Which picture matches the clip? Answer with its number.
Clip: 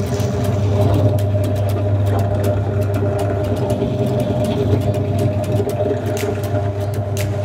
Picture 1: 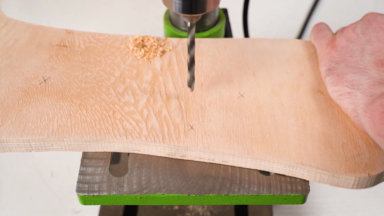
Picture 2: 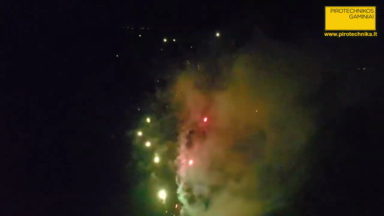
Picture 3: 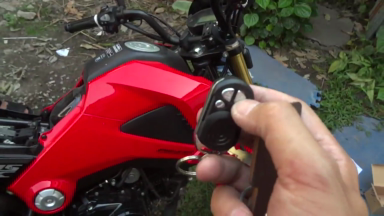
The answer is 1